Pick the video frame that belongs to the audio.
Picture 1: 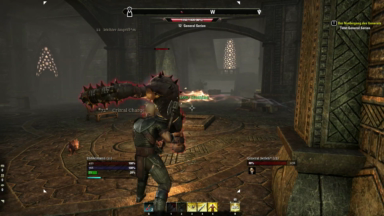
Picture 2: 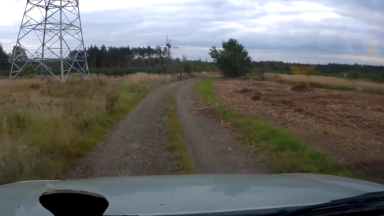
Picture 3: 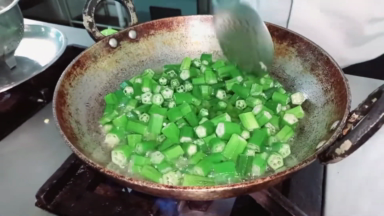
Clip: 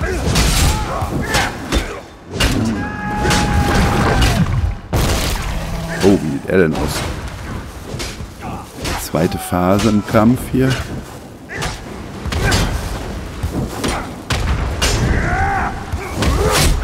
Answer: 1